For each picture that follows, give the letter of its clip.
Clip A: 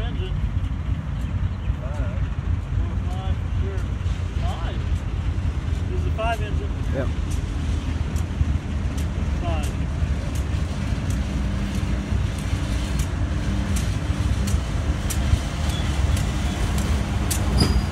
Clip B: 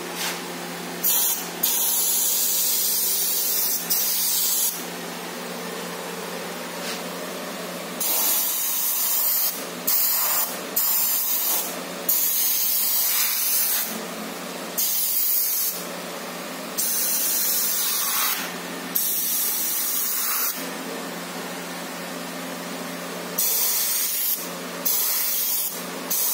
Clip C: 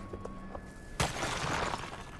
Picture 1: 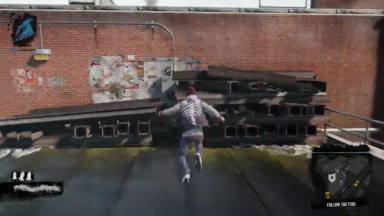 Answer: C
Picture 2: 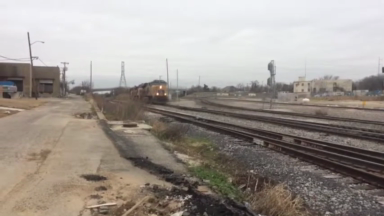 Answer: A